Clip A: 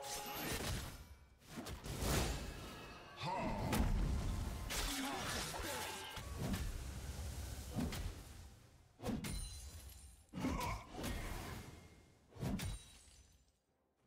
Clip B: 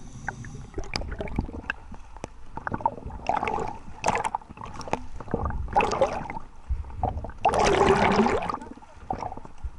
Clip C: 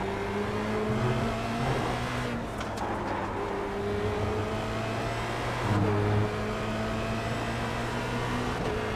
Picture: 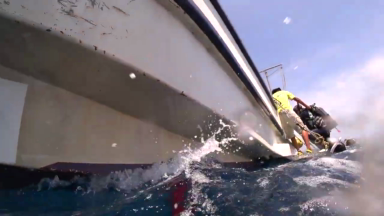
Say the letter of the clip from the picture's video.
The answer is B